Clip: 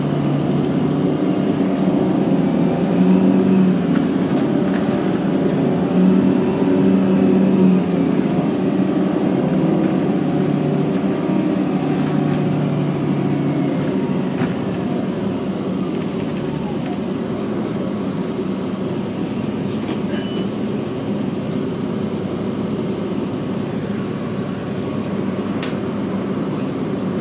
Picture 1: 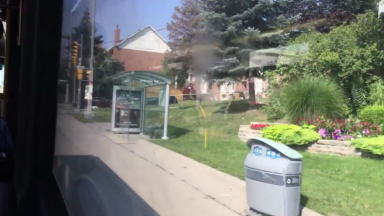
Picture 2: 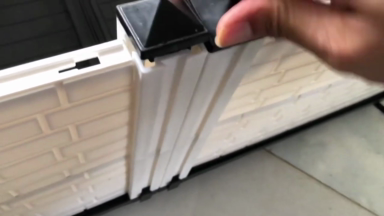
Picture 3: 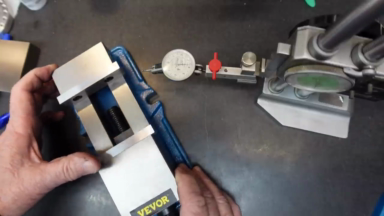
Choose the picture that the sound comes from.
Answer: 1